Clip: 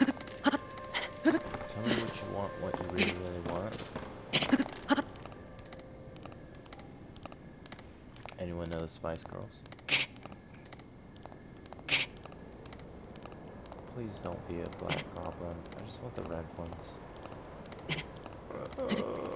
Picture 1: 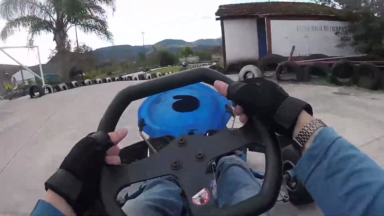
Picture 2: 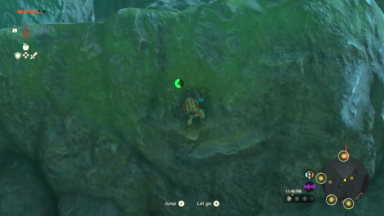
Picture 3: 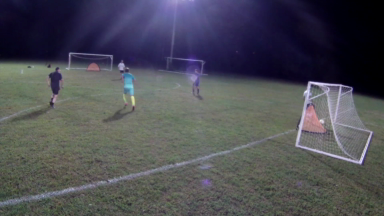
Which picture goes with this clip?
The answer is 2